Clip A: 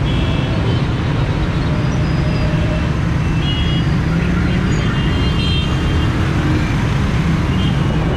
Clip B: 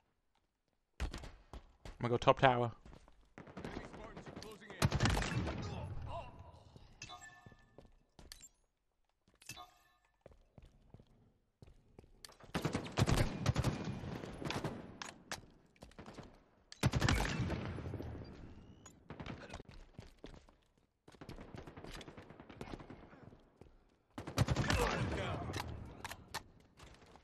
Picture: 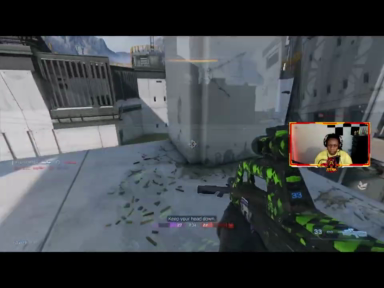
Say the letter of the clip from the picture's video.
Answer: B